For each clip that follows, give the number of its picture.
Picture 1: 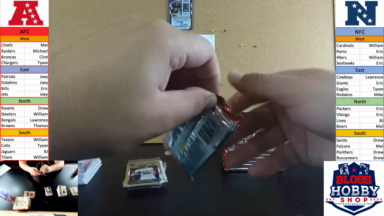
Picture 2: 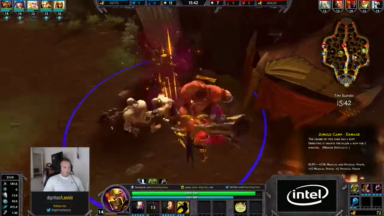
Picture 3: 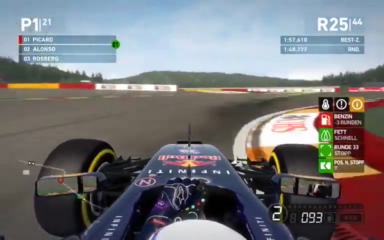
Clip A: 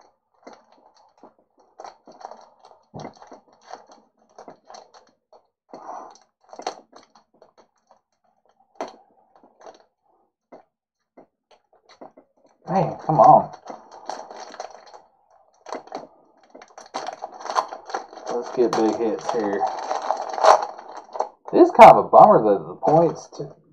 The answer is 1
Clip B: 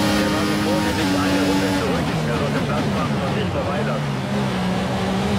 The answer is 3